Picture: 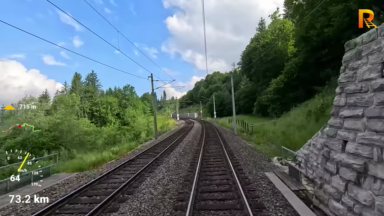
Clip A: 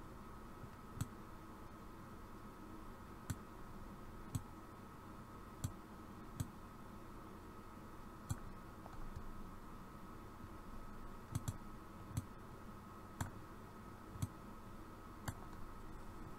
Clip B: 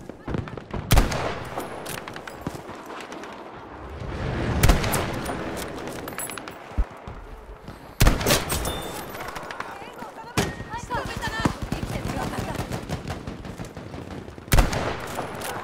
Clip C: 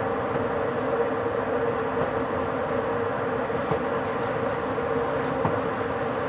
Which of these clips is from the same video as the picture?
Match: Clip C